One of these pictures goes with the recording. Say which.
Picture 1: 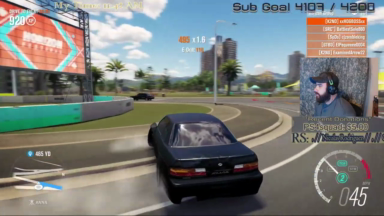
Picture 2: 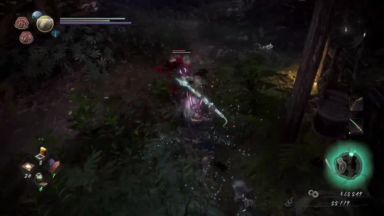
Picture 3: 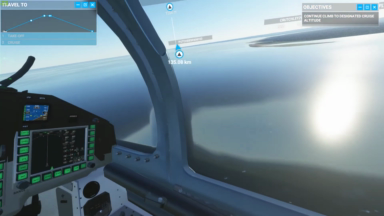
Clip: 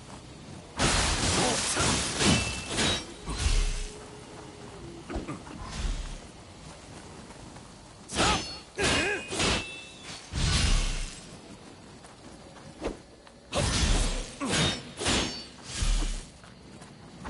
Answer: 2